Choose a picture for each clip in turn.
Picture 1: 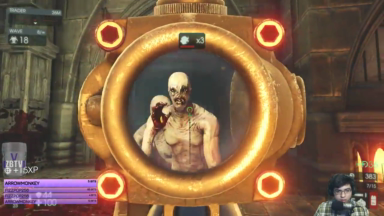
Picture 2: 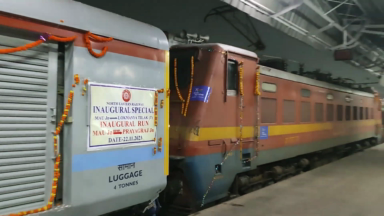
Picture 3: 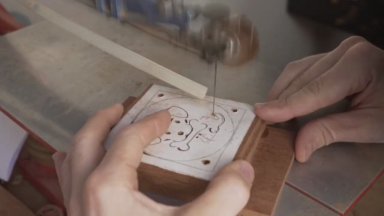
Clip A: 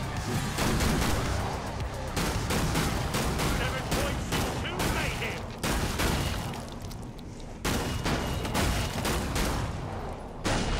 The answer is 1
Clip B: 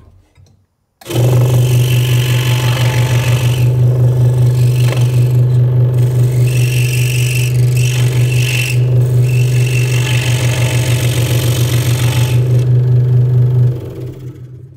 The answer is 3